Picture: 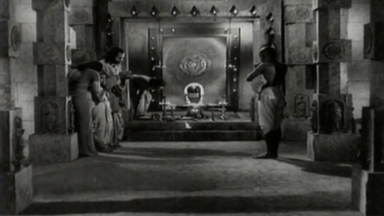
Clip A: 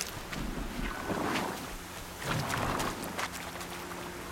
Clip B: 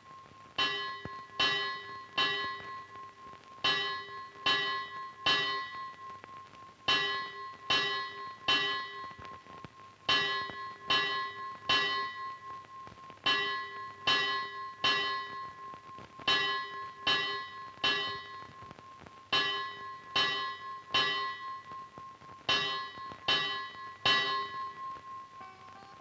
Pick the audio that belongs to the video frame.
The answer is B